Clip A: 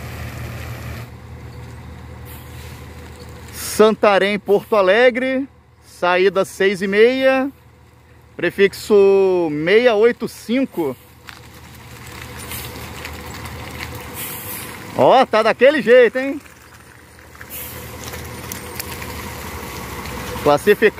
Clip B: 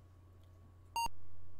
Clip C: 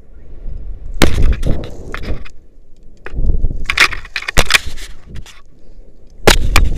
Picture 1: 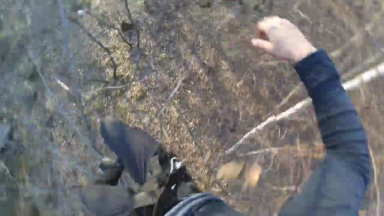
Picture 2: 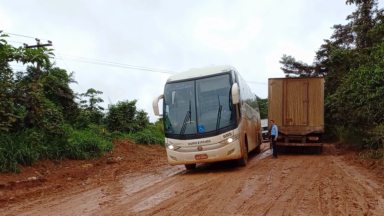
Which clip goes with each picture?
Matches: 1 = C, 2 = A